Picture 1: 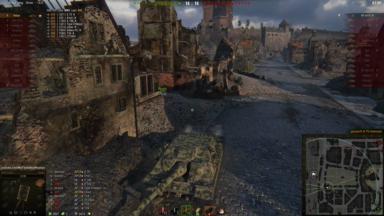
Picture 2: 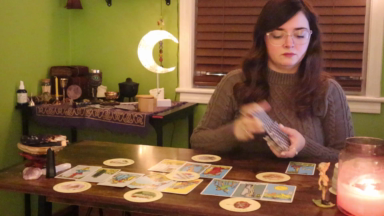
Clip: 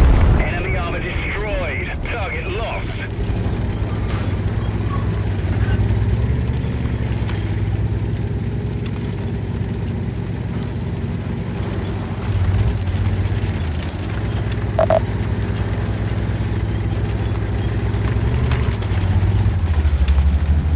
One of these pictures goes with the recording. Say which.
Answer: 1